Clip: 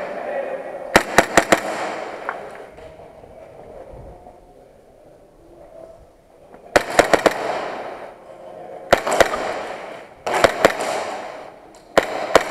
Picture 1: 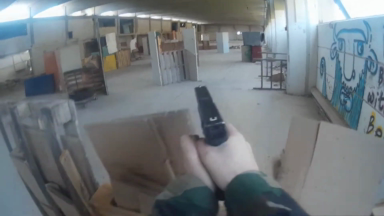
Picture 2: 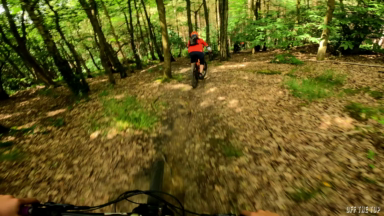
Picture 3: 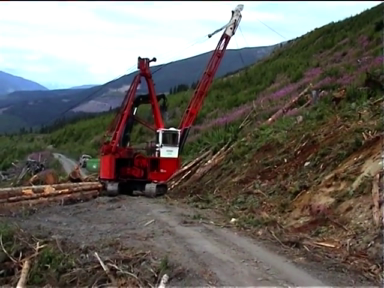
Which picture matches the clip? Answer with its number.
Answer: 1